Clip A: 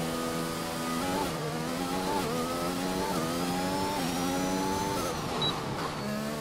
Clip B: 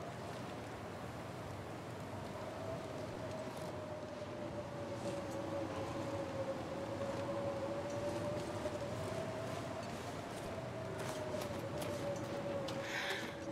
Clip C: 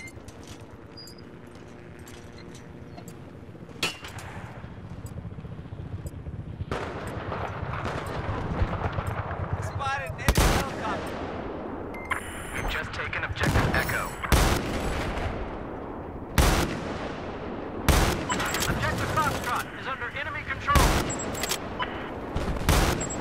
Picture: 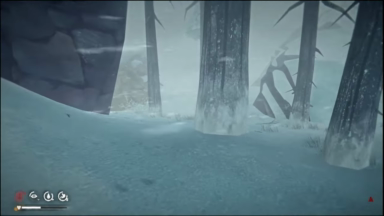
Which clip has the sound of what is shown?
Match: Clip B